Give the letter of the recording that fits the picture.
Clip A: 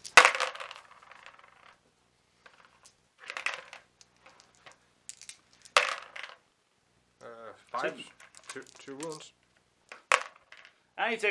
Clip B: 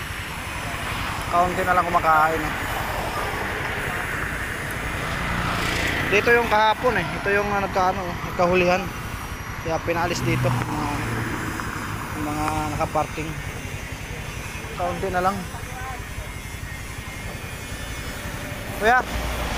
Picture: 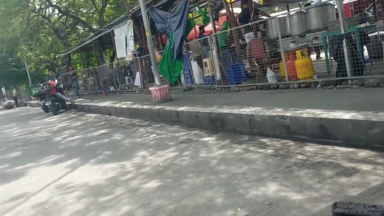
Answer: B